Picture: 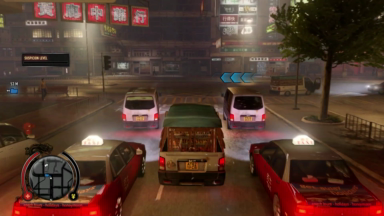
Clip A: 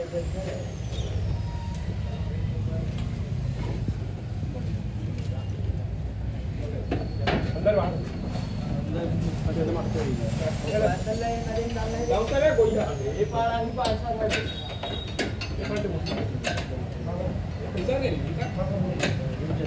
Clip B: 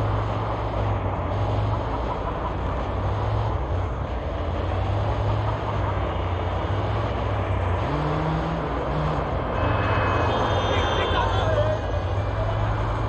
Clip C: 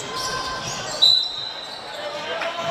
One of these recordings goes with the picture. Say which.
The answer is B